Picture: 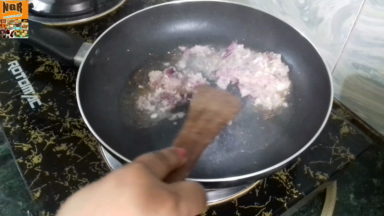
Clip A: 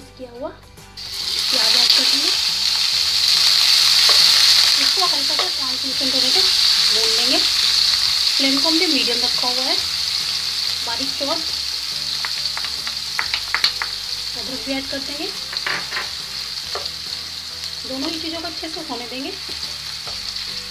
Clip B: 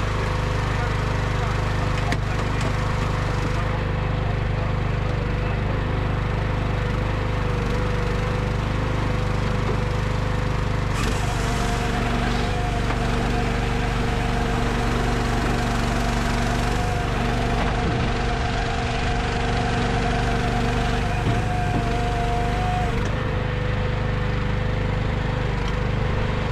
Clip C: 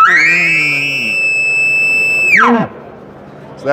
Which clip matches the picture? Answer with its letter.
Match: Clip A